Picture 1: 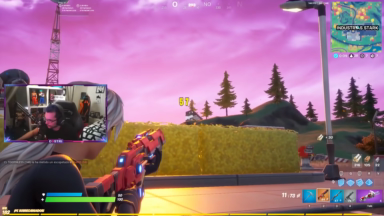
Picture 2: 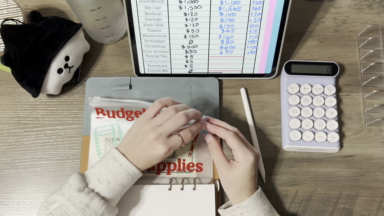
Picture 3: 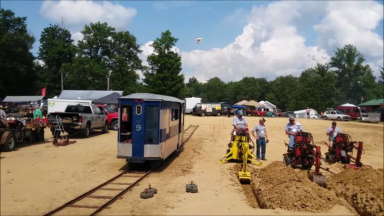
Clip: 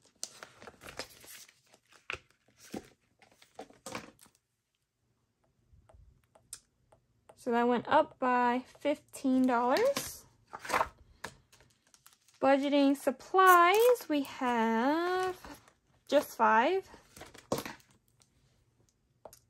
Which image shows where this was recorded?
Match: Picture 2